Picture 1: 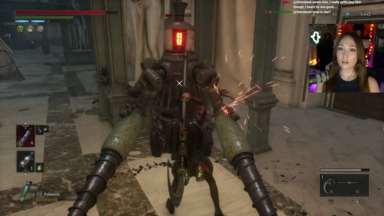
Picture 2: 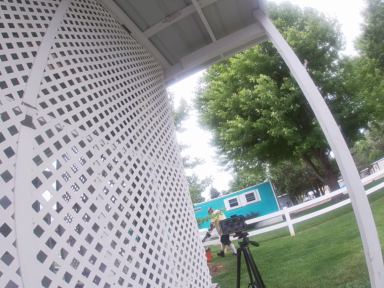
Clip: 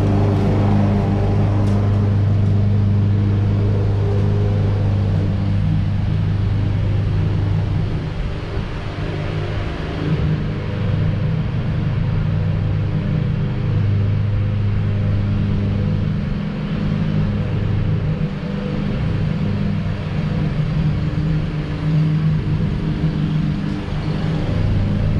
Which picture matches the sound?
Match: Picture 2